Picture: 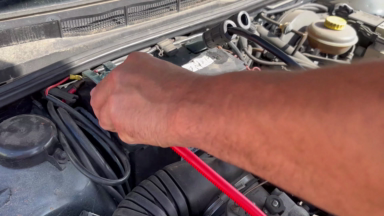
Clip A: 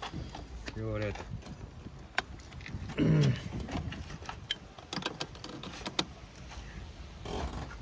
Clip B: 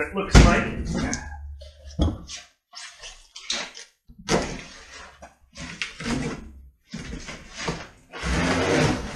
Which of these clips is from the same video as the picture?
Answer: A